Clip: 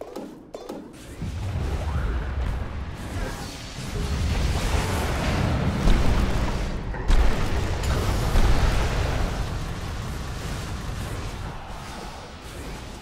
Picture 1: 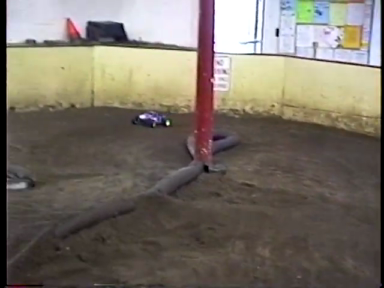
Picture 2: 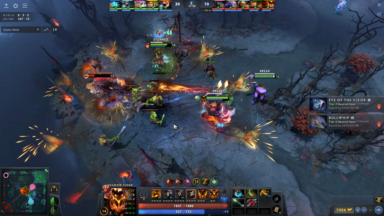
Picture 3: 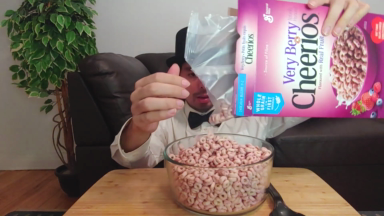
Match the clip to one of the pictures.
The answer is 2